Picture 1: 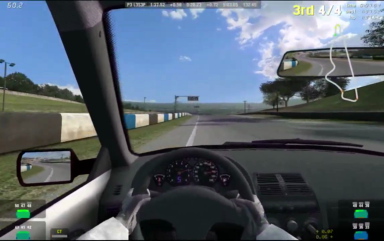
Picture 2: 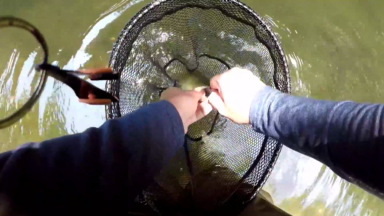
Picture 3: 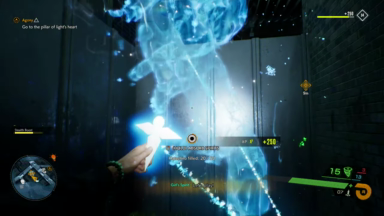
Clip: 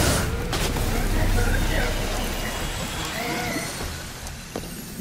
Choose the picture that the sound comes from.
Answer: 3